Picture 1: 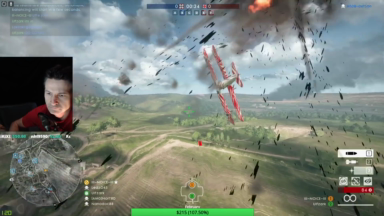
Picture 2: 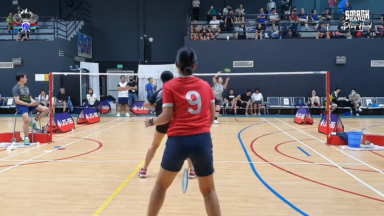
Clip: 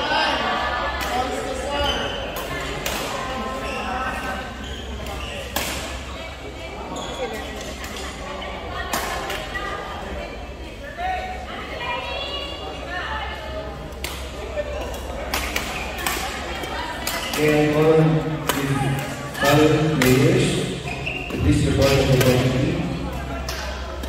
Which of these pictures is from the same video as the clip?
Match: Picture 2